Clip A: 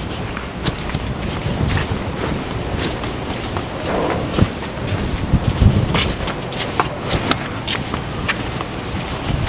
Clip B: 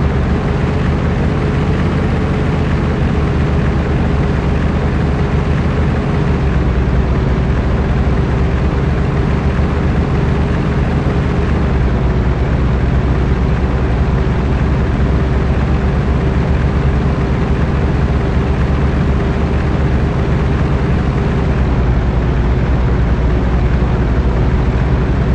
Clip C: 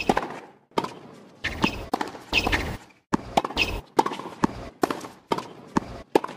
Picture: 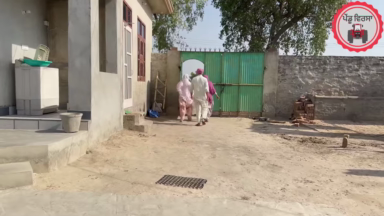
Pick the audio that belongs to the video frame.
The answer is A